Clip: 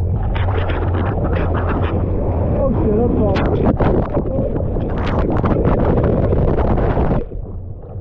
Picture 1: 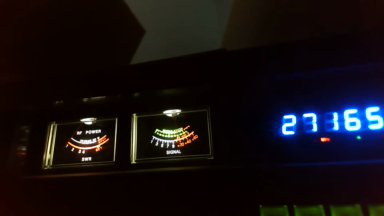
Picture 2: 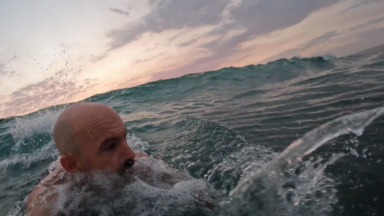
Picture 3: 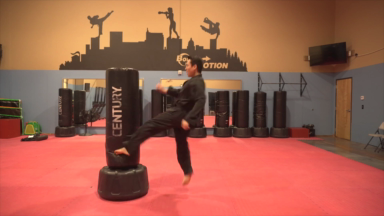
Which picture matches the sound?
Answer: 2